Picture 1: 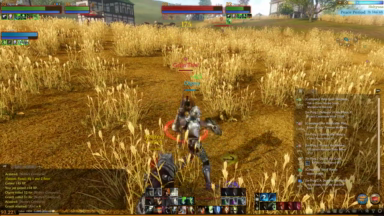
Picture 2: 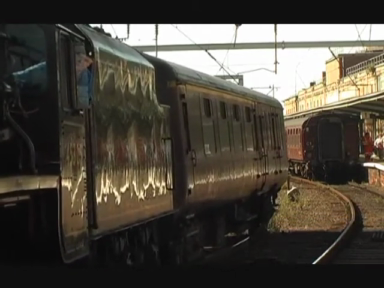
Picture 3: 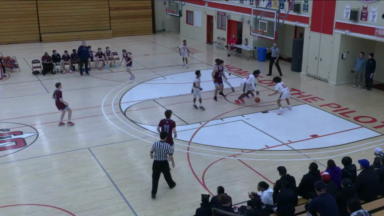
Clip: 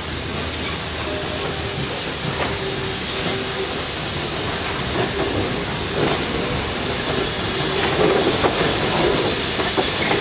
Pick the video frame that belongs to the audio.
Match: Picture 2